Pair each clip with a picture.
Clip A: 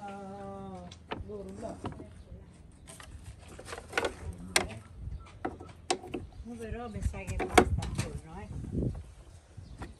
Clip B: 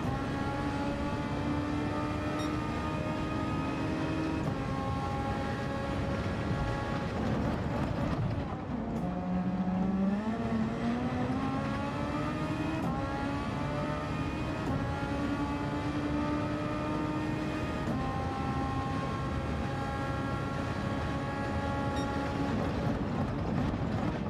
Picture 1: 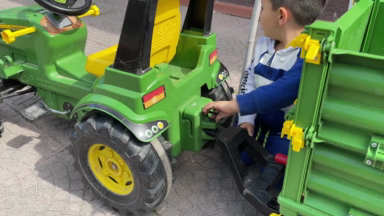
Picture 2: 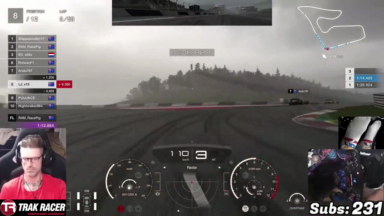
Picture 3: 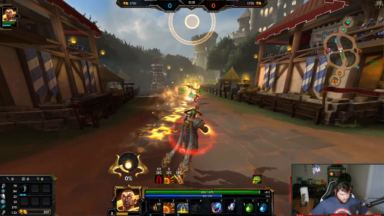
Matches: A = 1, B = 2